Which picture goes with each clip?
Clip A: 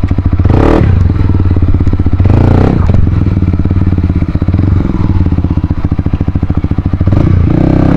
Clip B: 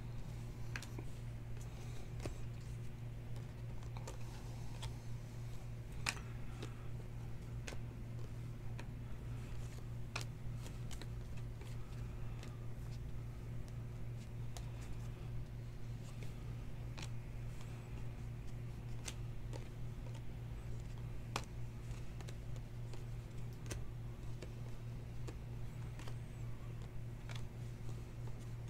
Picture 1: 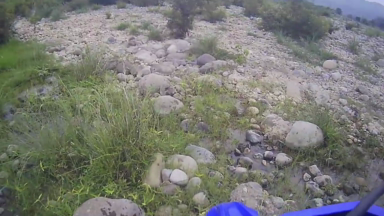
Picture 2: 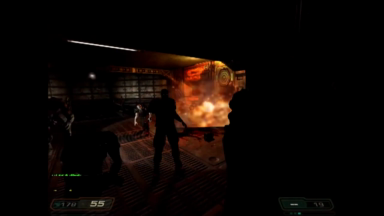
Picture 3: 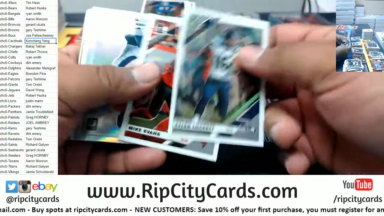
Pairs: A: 1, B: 3